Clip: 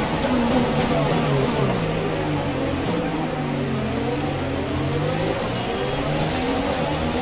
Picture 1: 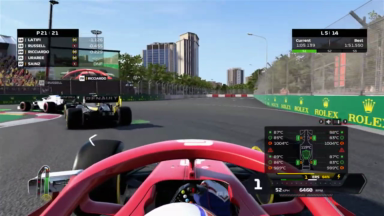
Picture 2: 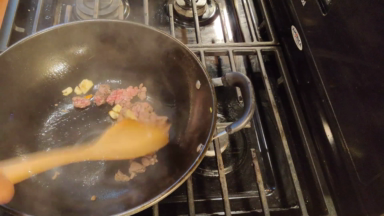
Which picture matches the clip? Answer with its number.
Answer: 1